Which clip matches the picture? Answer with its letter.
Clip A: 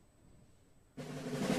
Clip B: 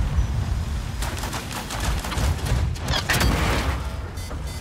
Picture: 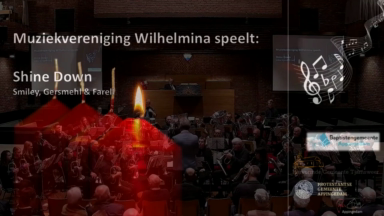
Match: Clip A